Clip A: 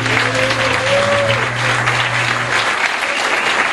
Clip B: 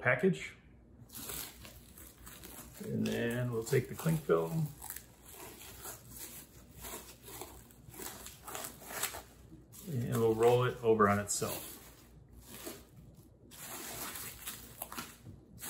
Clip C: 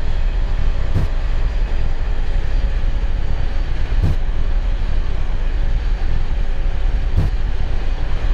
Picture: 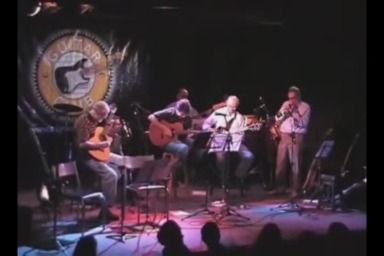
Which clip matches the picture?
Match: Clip A